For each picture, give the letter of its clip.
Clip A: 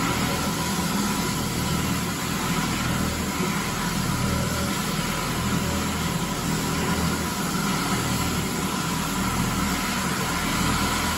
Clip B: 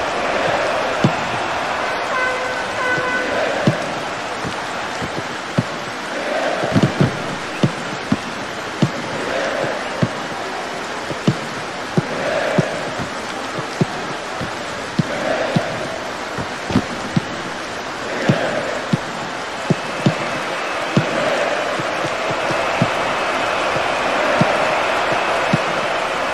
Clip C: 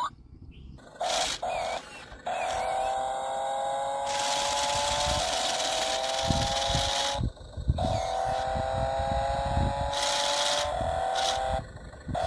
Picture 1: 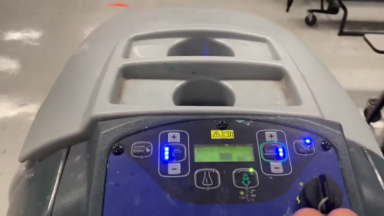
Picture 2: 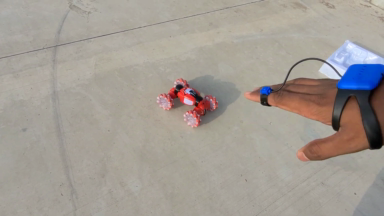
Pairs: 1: A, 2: C